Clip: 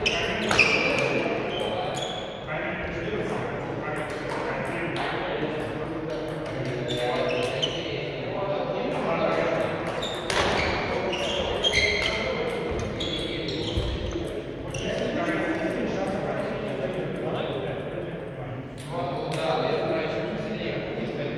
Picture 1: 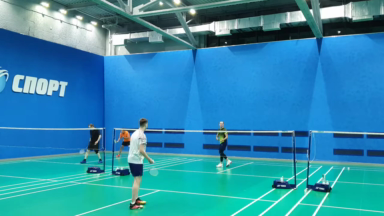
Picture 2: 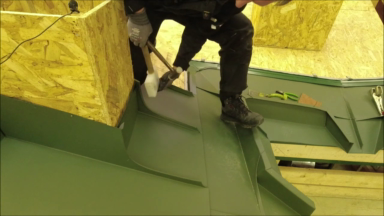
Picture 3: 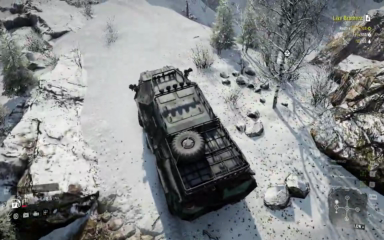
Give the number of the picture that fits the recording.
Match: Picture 1